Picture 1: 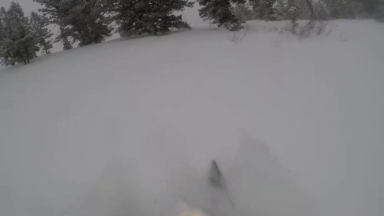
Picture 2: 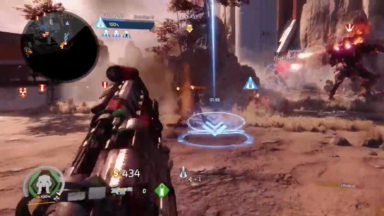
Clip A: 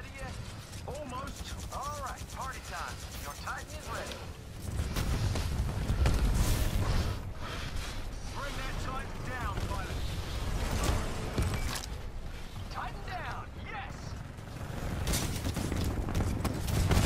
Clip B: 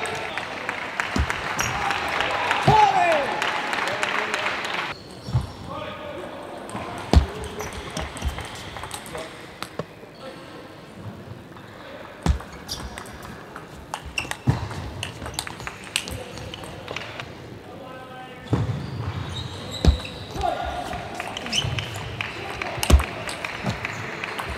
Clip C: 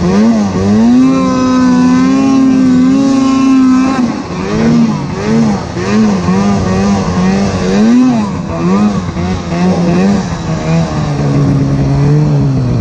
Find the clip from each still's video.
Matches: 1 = C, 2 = A